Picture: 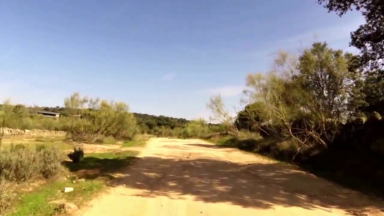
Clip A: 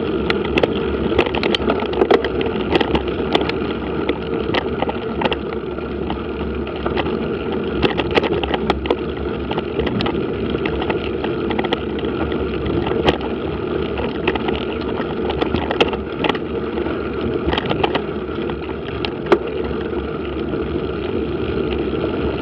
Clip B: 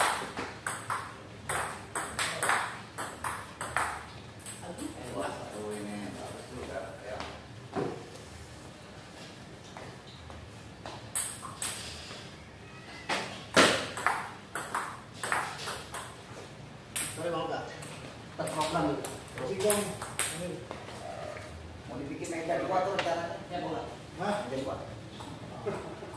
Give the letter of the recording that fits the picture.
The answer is A